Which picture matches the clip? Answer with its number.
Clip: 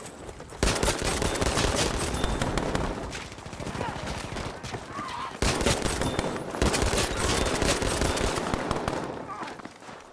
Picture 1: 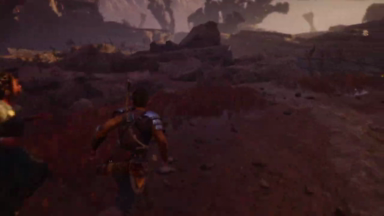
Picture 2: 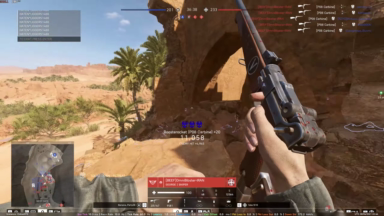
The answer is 2